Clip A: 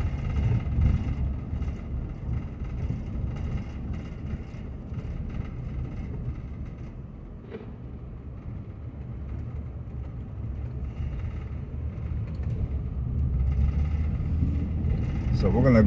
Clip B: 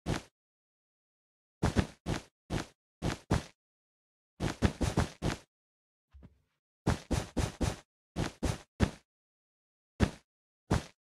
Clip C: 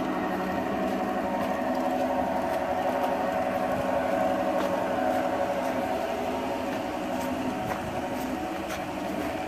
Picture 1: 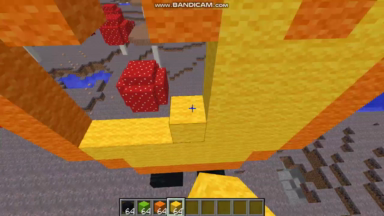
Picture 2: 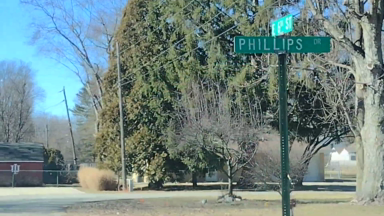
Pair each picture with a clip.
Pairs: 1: B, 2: A